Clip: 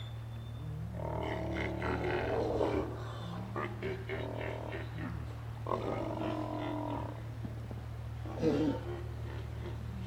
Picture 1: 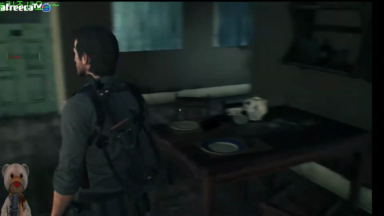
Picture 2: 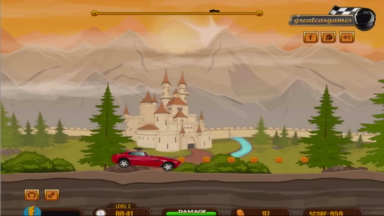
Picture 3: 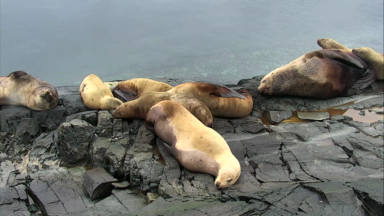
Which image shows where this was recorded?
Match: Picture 3